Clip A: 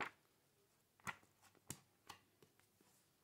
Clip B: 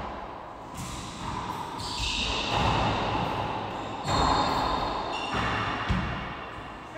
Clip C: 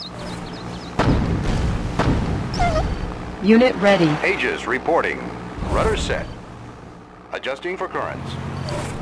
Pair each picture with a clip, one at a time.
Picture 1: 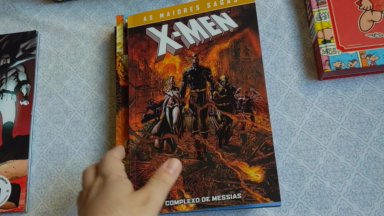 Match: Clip A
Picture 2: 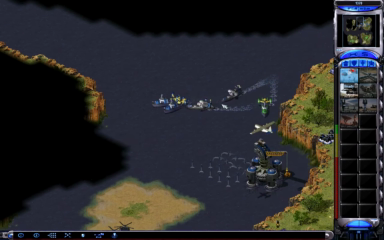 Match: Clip C